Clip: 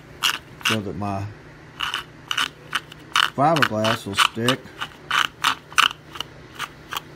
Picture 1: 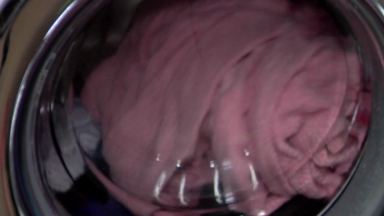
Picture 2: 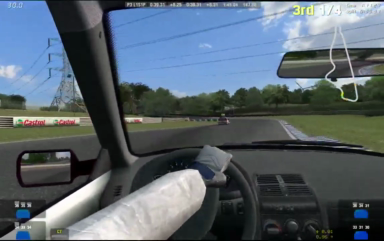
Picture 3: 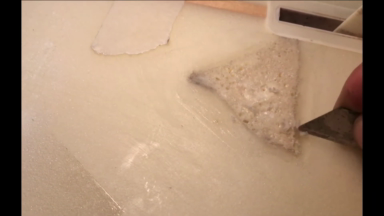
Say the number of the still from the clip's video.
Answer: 3